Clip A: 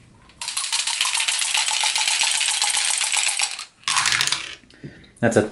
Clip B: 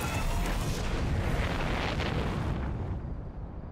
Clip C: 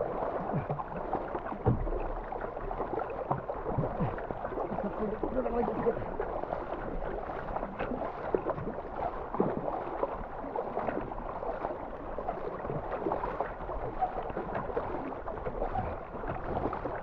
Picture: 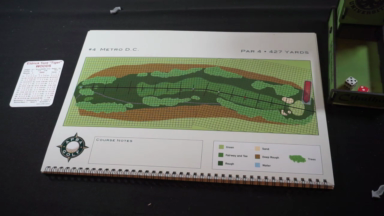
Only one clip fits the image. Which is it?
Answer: A